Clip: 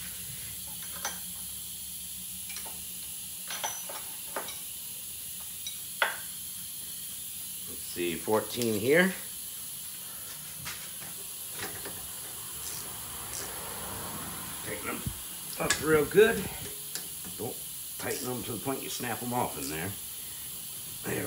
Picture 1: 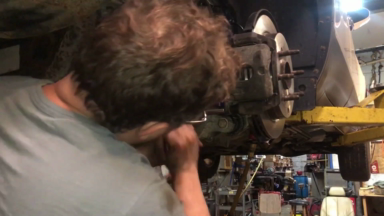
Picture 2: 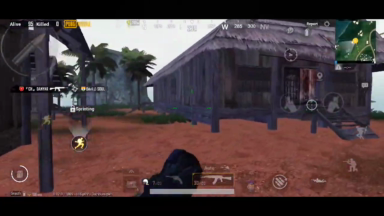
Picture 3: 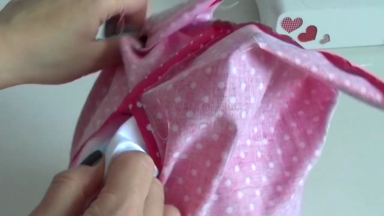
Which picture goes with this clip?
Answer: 1